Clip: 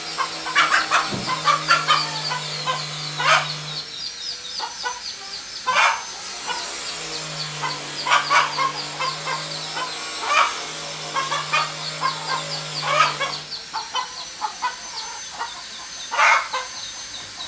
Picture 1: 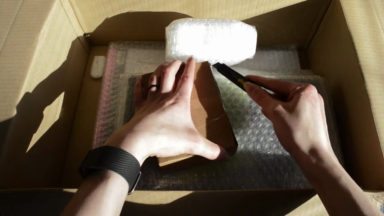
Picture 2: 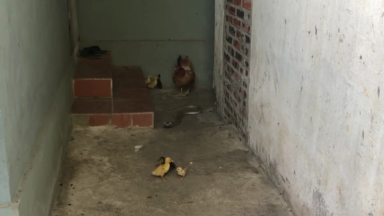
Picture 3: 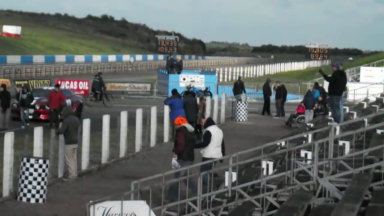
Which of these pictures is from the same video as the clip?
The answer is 2